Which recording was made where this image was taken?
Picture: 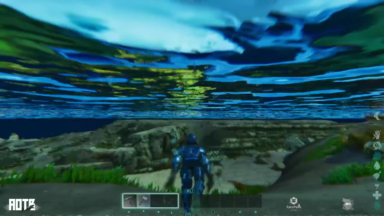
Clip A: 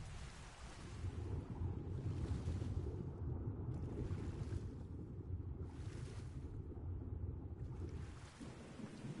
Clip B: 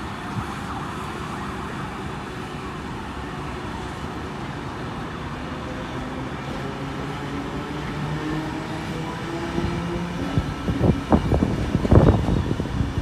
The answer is A